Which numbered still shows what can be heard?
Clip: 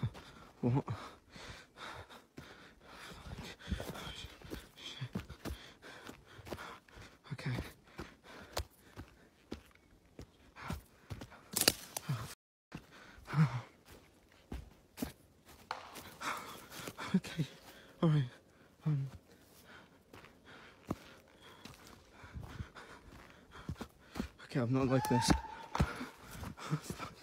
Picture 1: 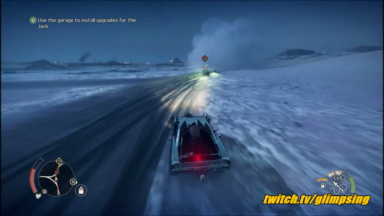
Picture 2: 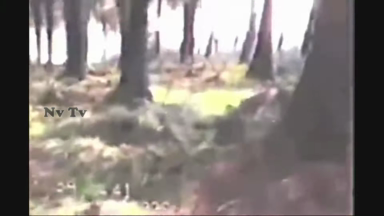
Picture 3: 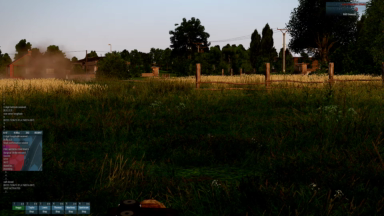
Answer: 2